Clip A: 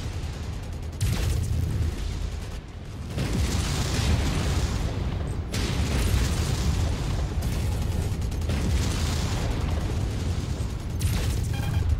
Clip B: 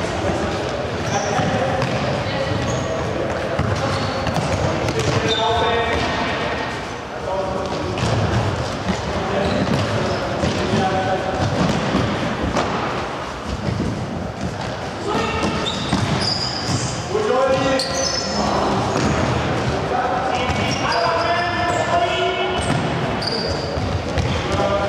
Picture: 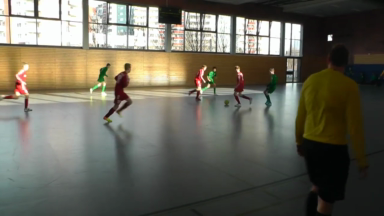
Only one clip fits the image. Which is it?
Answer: B